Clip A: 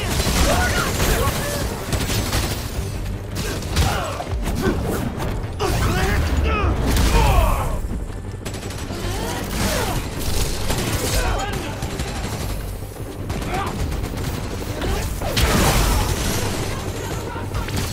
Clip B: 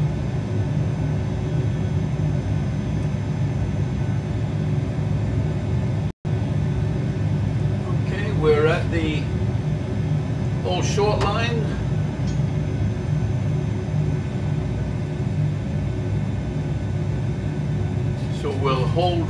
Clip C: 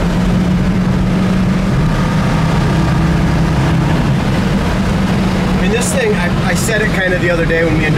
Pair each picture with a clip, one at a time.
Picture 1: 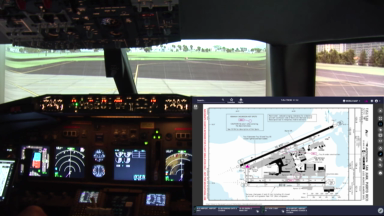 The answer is B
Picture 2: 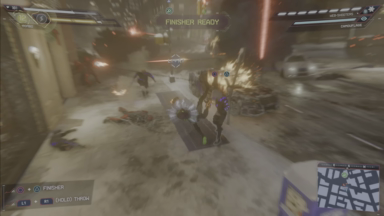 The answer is A